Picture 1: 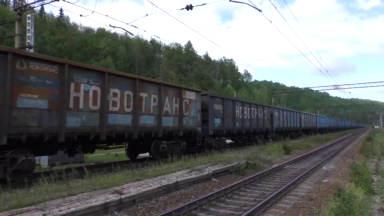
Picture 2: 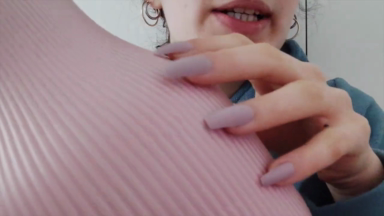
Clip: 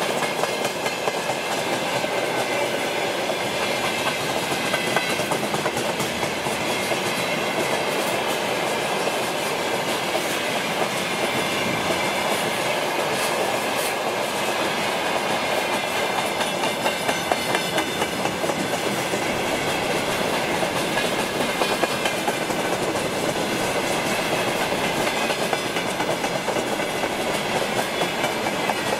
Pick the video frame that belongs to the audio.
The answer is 1